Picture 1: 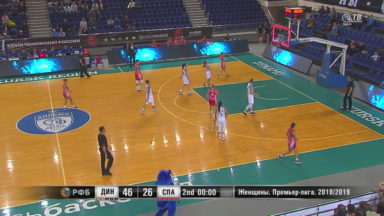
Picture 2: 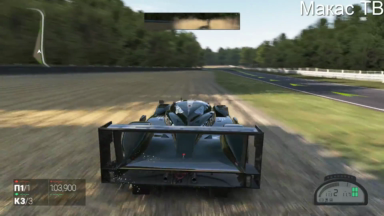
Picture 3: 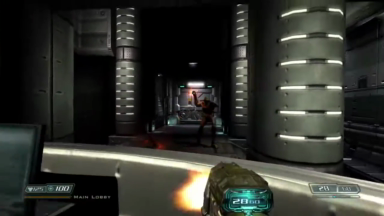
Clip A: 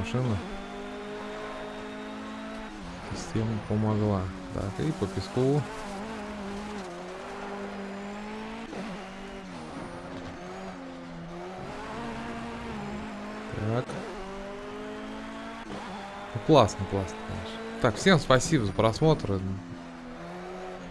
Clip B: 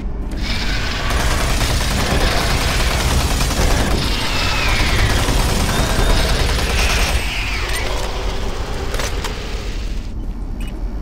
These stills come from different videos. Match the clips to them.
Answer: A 2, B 3